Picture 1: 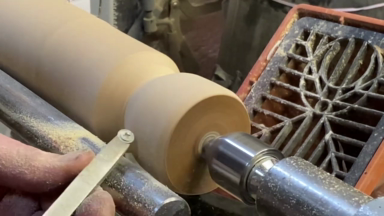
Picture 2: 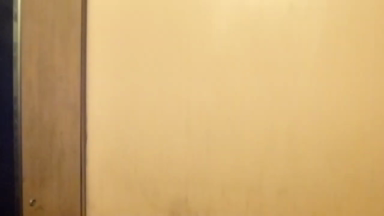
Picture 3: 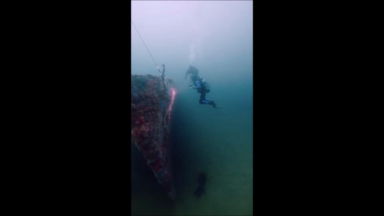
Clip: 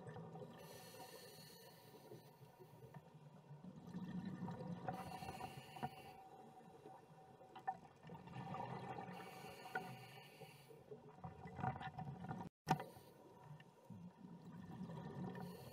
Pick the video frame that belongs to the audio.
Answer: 3